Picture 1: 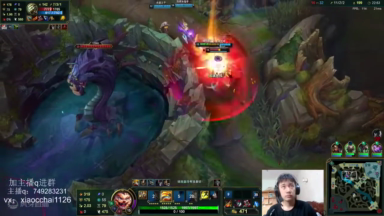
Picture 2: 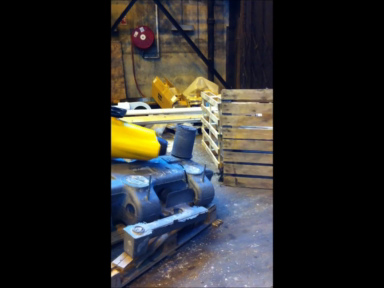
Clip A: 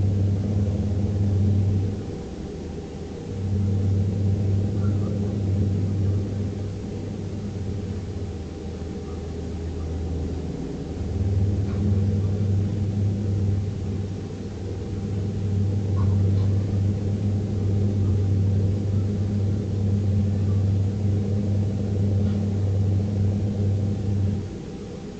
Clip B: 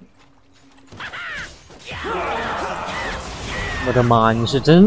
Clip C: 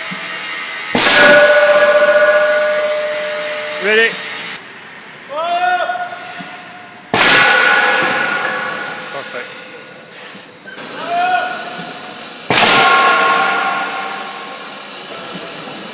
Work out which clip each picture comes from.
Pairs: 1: B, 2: C